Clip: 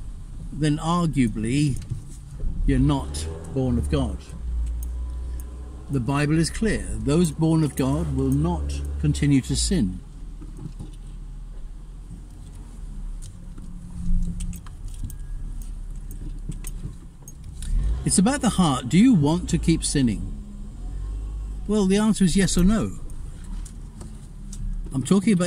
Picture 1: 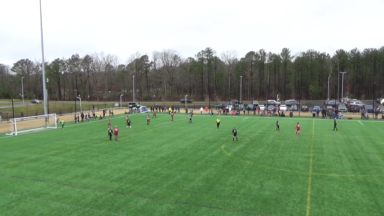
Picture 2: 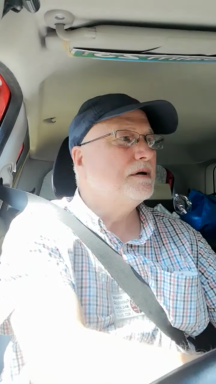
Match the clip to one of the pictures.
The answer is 2